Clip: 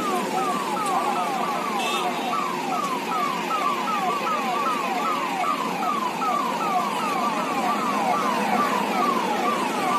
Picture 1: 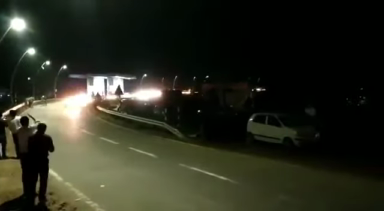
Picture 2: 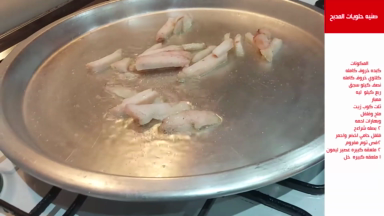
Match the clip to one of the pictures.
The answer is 1